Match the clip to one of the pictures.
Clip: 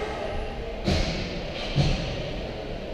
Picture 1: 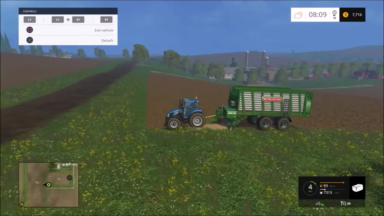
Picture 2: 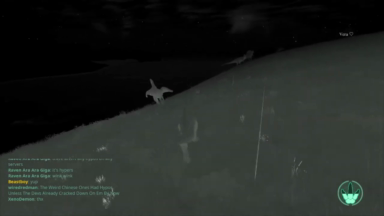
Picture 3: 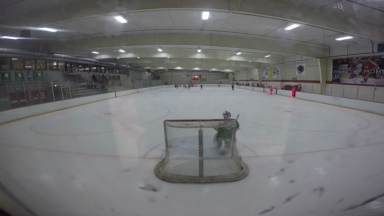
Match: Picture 3